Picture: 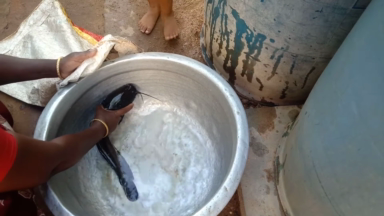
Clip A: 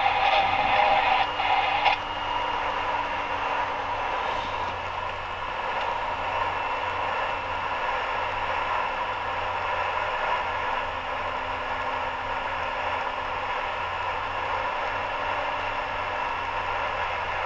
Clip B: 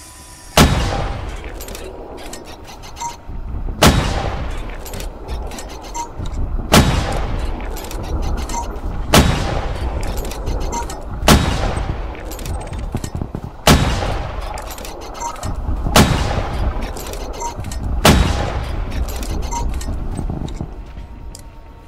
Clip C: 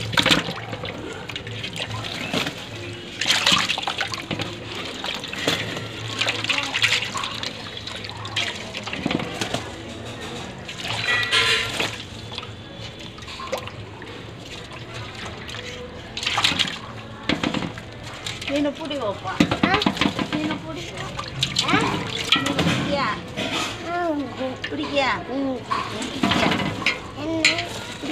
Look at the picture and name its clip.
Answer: C